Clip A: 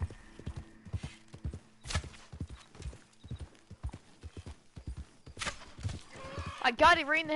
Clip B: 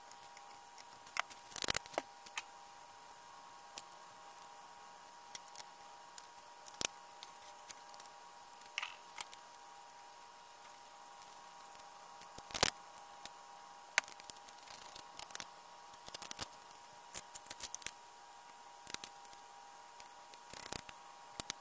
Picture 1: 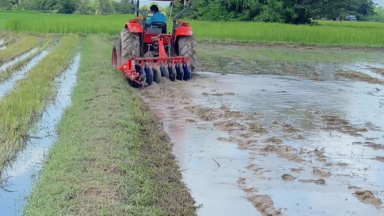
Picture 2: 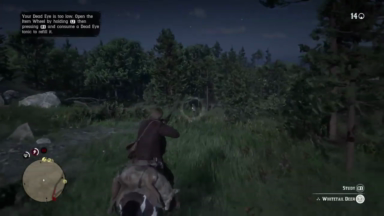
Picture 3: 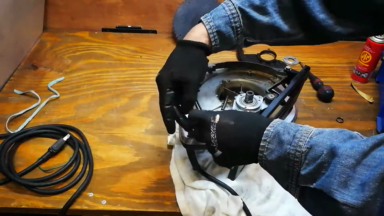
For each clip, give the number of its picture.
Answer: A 2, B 3